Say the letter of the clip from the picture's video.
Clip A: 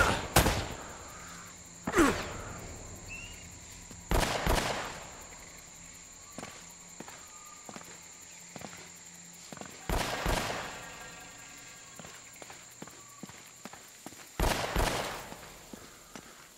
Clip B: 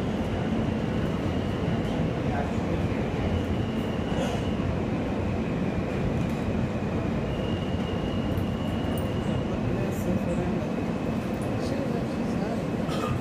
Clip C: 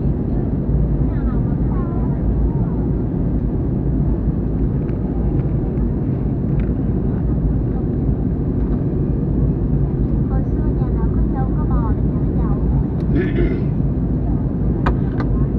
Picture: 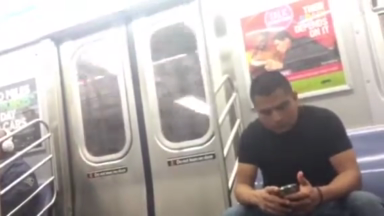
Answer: B